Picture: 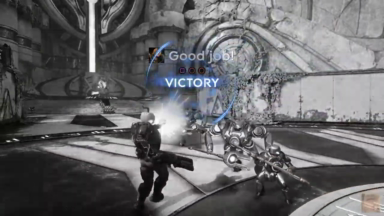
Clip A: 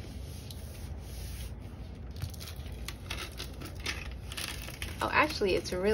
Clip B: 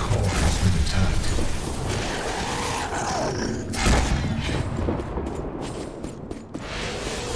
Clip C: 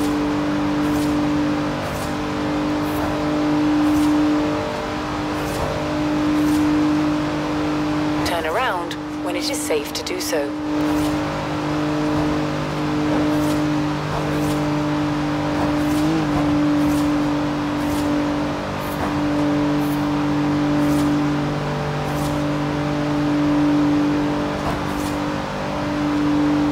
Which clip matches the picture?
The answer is B